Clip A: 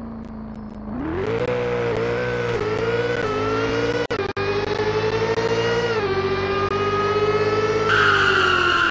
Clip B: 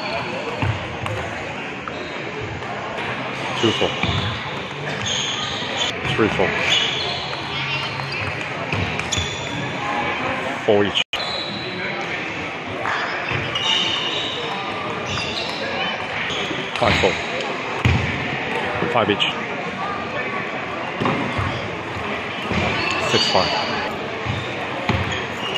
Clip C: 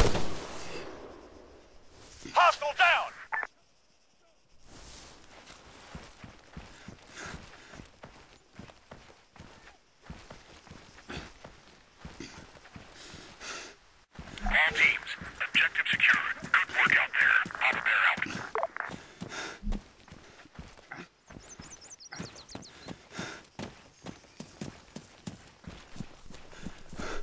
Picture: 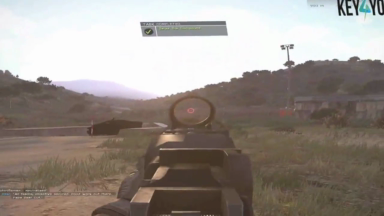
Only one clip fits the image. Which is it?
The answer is C